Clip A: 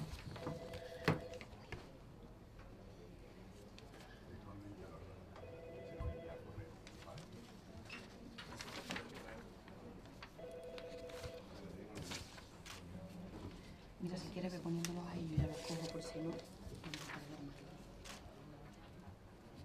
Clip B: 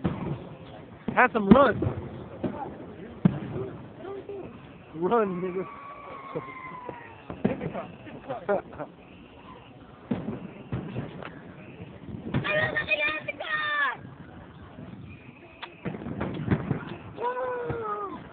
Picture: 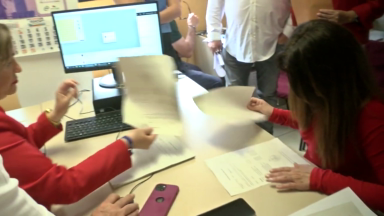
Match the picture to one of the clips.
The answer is A